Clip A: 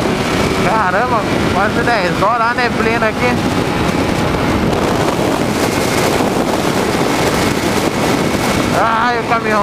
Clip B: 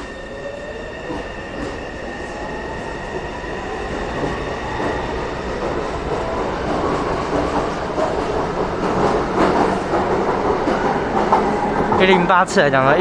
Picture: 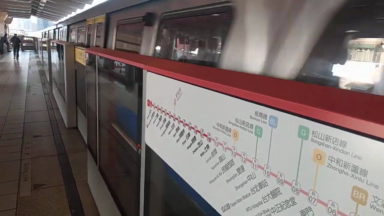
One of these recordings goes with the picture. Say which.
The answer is B